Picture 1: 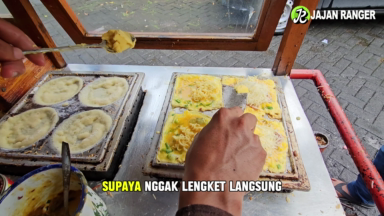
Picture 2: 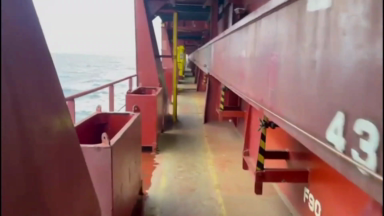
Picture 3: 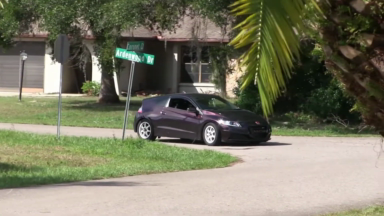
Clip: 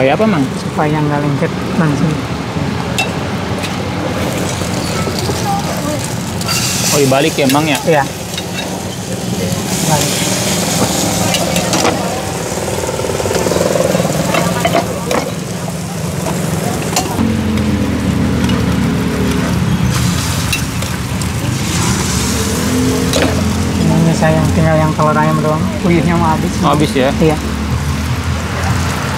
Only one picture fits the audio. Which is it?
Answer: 1